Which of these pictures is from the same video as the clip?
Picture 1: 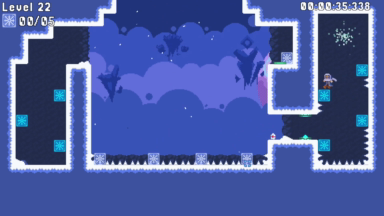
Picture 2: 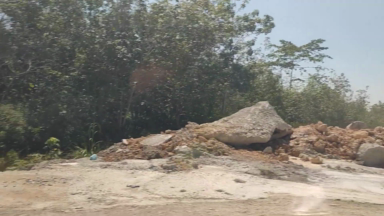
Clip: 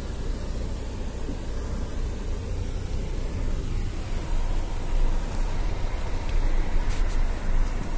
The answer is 2